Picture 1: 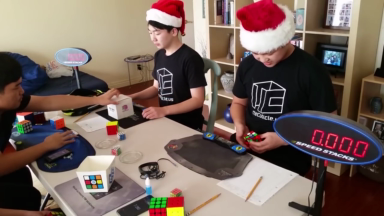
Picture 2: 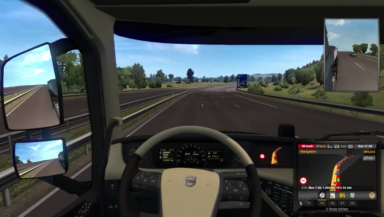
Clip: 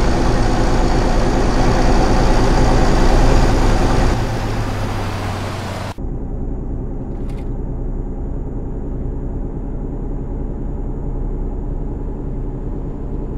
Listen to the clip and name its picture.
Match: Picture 2